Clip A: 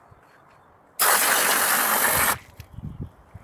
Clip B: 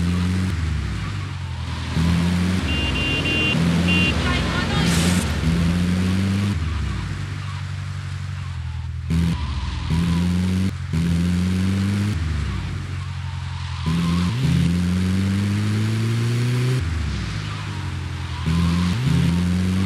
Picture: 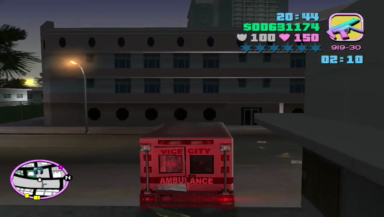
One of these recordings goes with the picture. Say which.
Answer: B